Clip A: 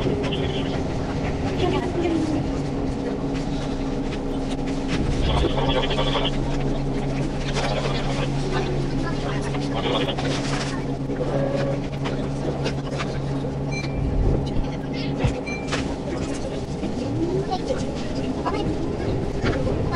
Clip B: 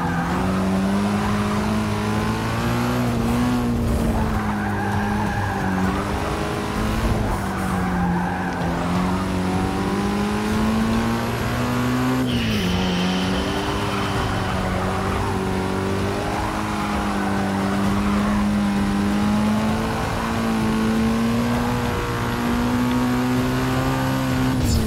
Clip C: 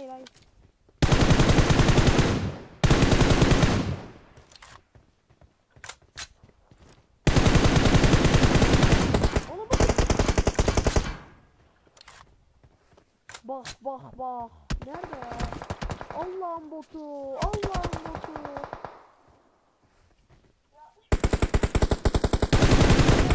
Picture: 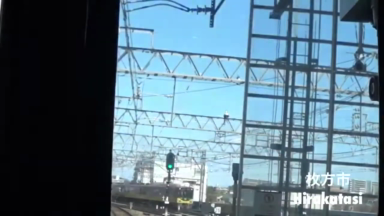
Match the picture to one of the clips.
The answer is A